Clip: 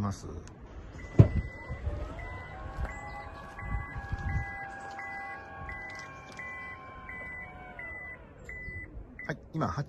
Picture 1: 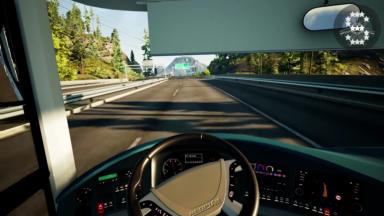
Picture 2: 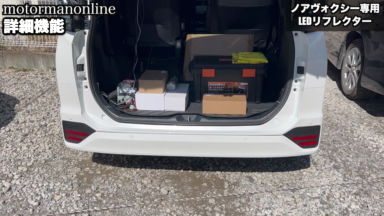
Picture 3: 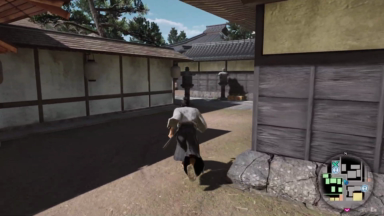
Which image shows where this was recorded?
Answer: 2